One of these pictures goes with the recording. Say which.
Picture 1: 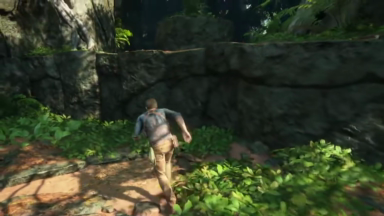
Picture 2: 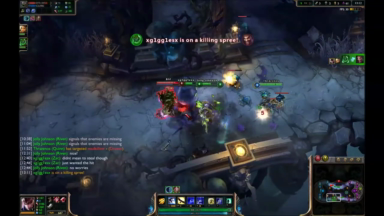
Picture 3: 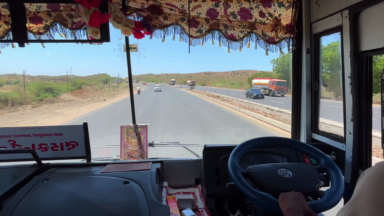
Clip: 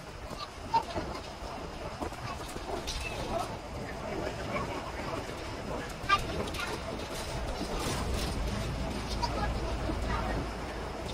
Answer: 3